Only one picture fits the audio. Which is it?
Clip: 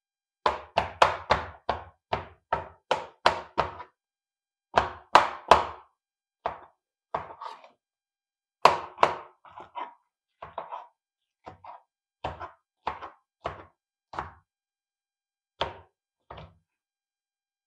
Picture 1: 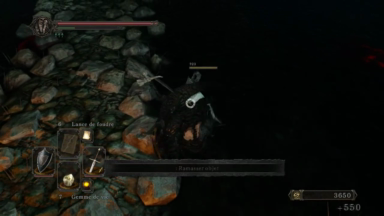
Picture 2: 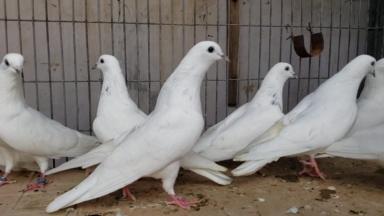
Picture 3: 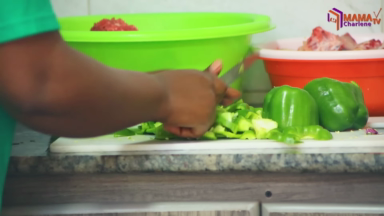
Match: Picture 3